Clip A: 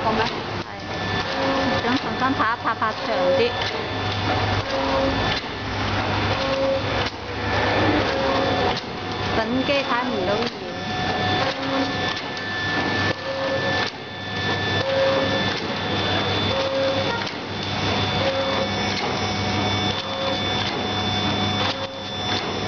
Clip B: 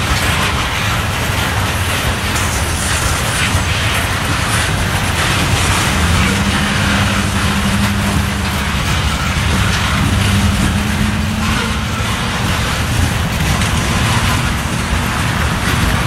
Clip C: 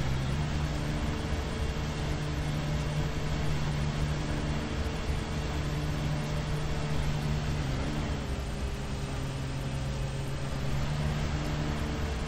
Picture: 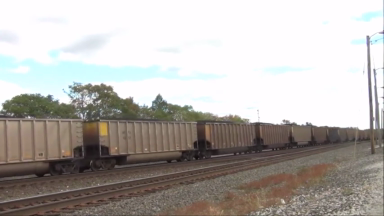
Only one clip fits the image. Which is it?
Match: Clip B